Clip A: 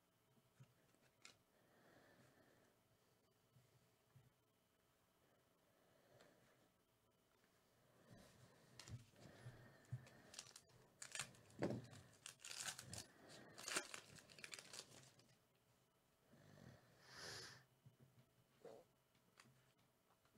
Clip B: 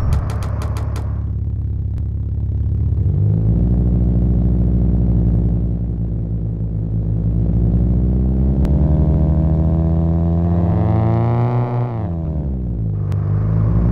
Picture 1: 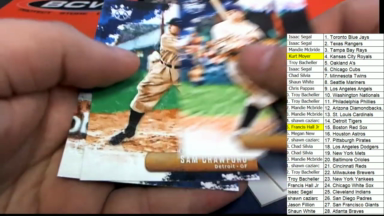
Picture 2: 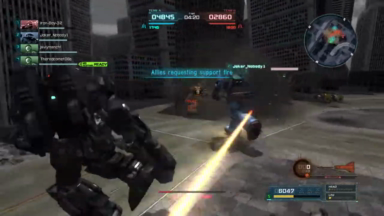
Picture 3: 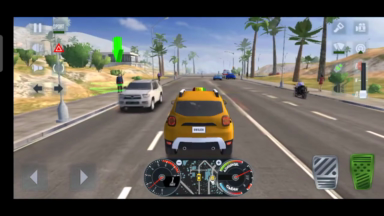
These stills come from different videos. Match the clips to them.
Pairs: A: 1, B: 3